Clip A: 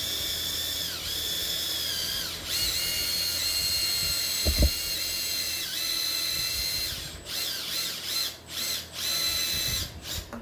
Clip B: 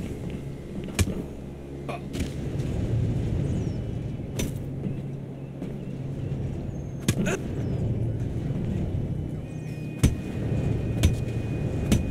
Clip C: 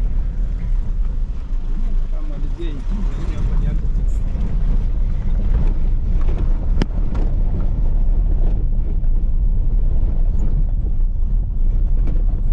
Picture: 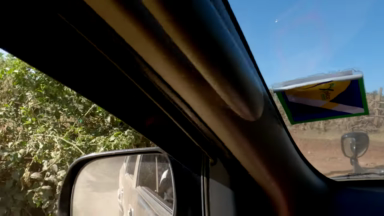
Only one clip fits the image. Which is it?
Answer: C